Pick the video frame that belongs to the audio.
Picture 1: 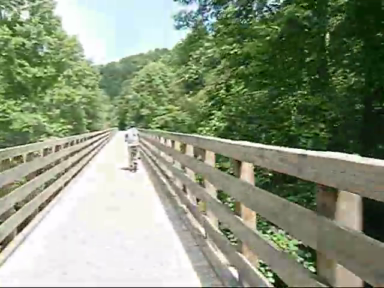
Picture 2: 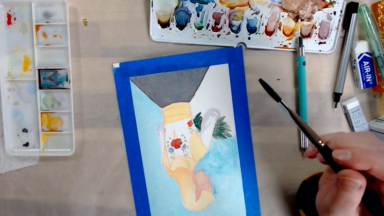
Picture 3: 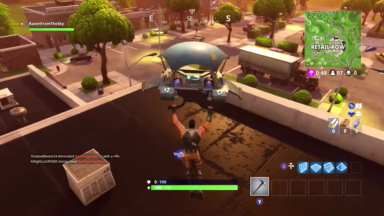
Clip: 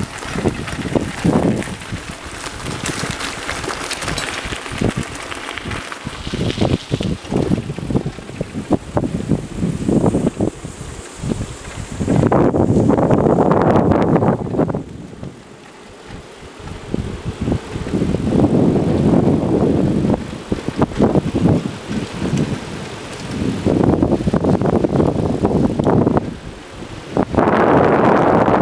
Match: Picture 1